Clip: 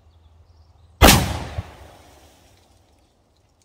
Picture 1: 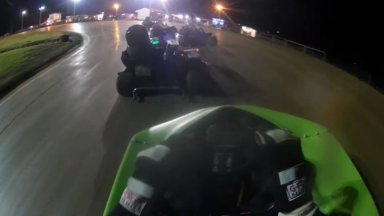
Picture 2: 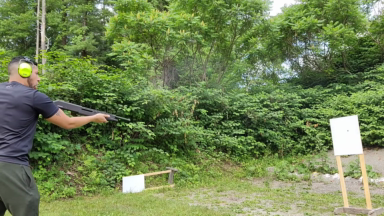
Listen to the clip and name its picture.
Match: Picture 2